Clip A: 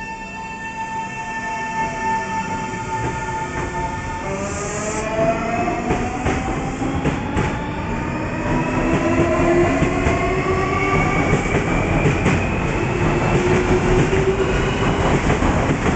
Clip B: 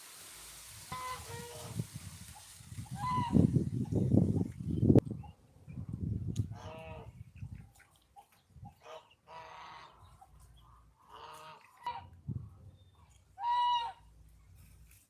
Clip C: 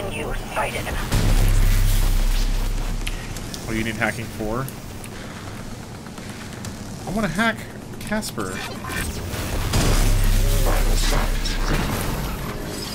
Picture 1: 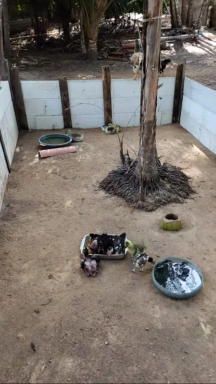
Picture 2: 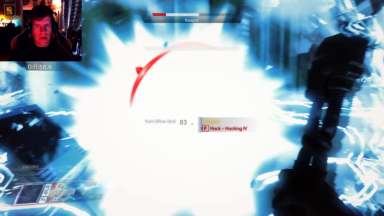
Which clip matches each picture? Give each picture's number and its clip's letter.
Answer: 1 B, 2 C